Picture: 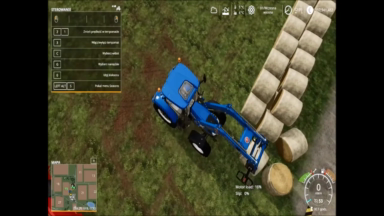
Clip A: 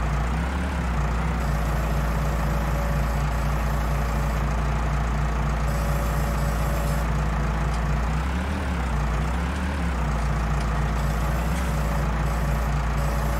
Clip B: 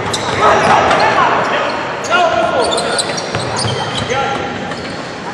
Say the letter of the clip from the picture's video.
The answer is A